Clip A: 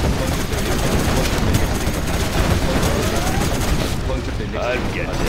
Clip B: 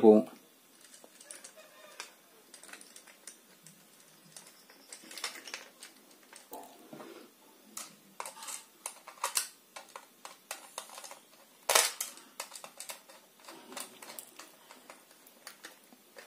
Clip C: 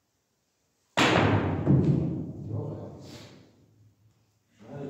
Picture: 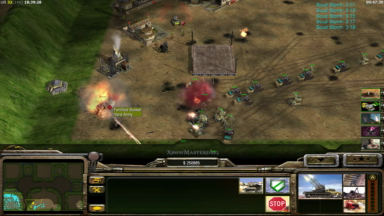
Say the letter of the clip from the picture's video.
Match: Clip A